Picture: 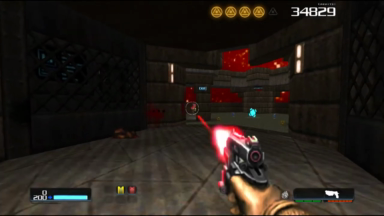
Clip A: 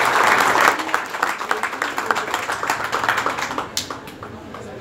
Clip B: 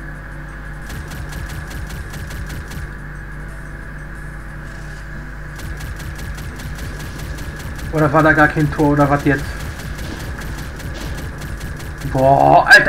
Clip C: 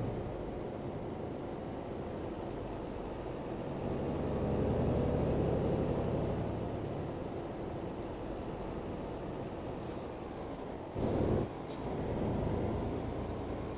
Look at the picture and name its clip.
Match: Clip B